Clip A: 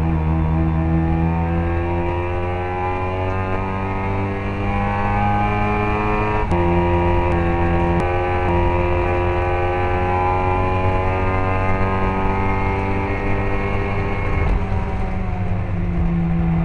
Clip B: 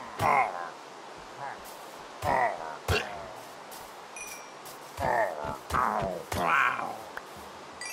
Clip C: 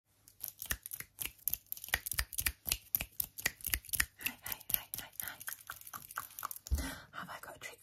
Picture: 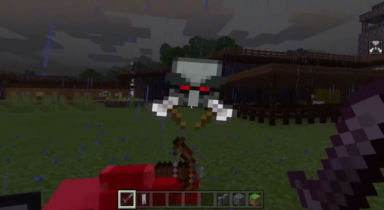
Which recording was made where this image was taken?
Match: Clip B